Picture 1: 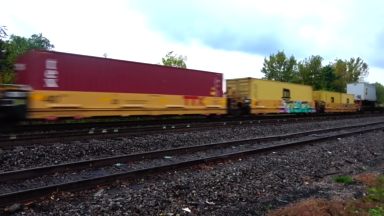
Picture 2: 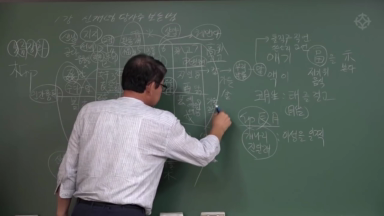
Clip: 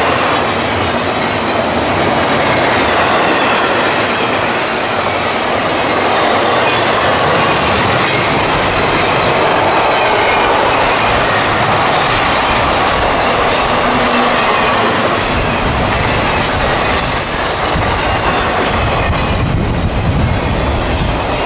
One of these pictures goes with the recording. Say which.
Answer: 1